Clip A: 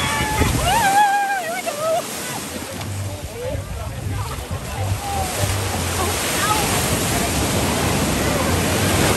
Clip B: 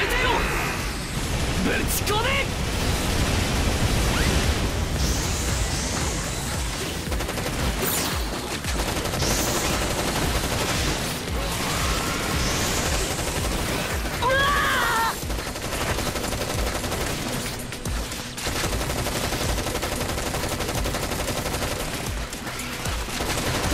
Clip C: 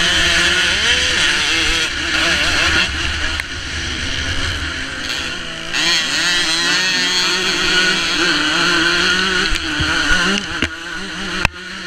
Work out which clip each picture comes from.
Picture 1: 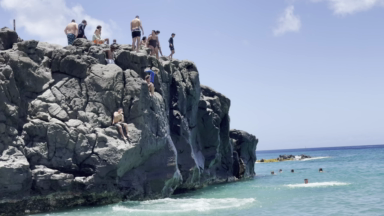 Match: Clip A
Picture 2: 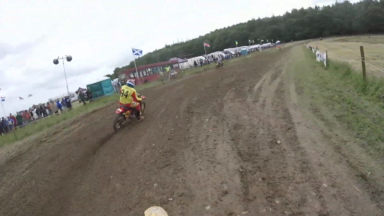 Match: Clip C